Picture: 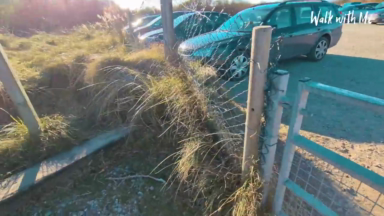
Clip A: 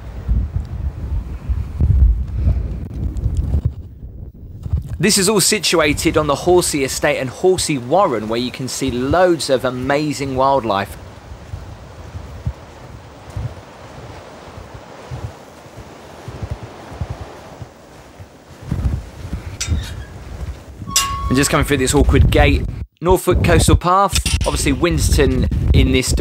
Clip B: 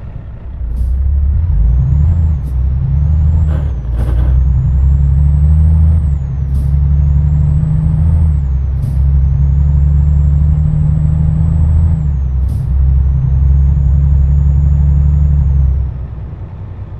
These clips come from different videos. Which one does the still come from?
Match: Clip A